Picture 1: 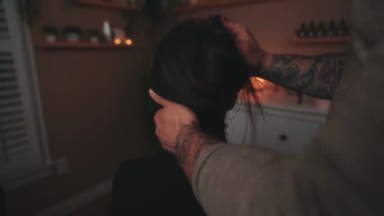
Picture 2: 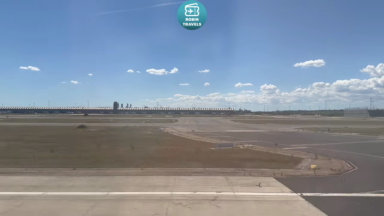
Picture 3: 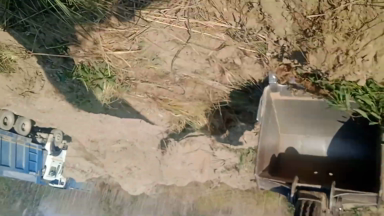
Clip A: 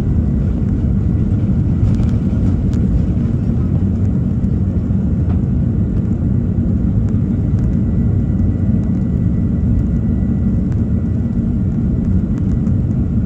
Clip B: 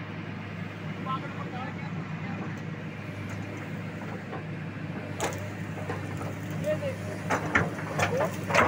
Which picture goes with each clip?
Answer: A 2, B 3